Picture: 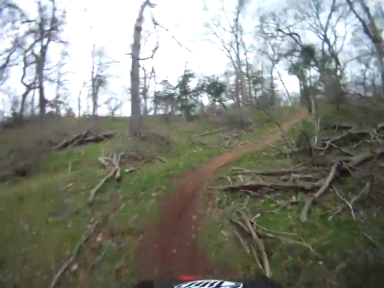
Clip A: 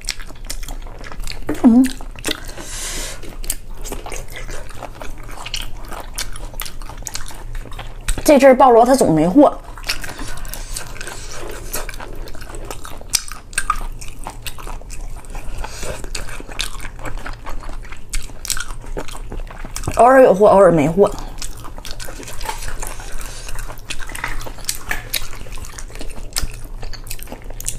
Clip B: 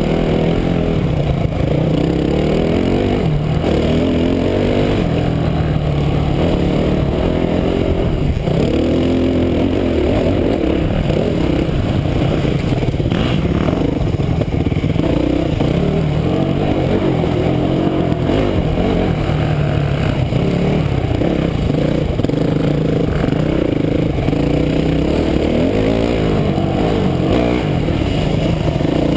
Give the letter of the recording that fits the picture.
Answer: B